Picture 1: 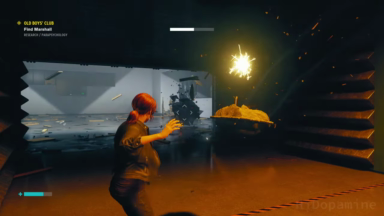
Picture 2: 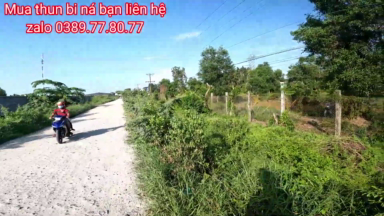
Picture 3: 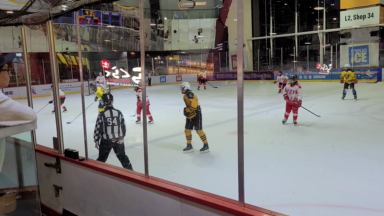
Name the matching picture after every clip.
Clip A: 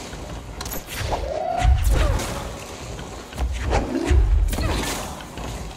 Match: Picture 1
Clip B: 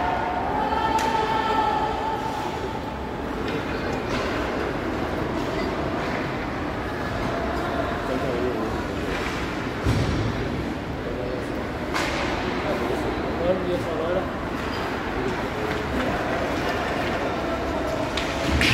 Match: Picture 3